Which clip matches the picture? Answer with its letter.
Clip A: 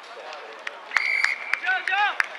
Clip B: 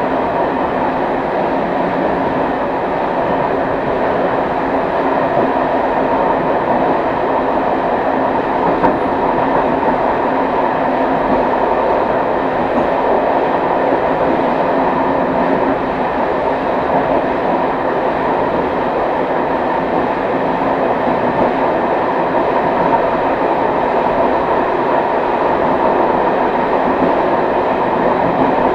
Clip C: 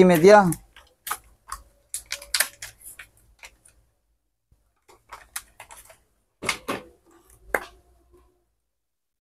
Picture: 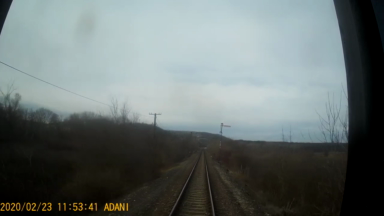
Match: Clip B